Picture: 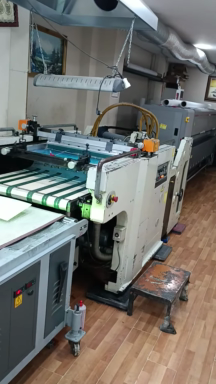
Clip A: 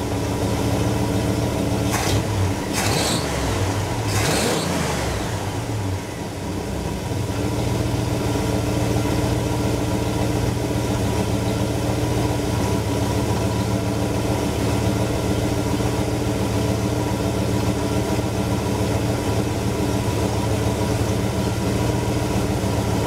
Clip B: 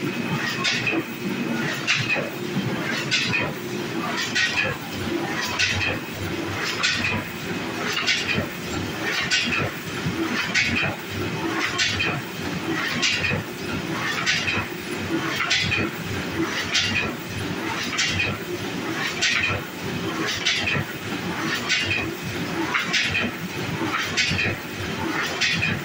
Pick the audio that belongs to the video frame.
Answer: B